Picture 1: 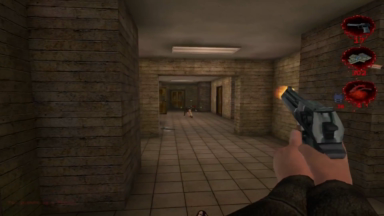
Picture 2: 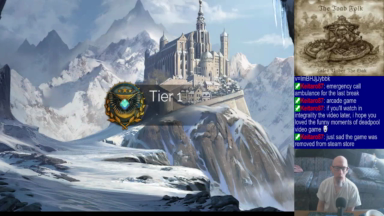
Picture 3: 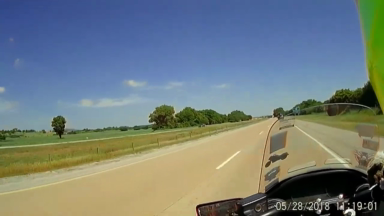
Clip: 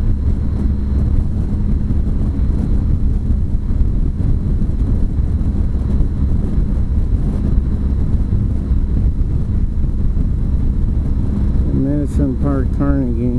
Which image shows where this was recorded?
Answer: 3